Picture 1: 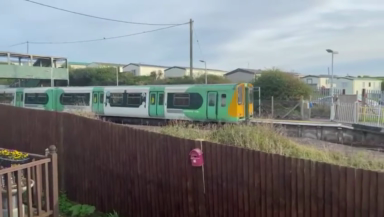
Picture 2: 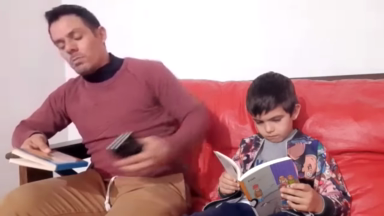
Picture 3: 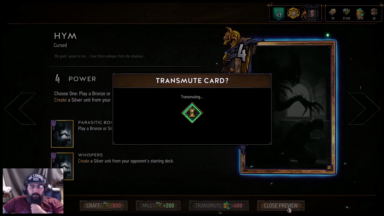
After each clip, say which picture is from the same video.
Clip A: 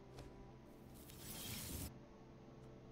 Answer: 3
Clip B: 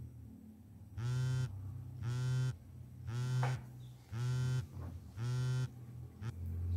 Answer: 2